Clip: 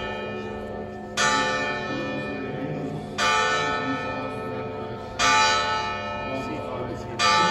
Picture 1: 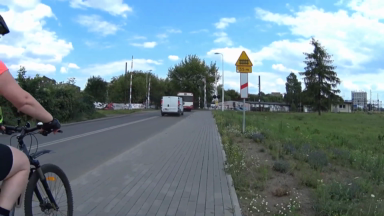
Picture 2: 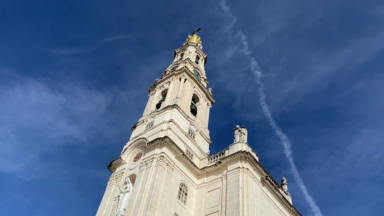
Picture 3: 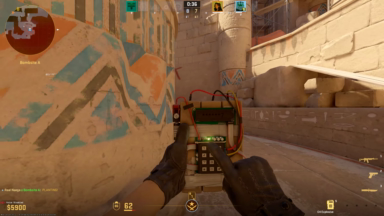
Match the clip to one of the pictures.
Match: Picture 2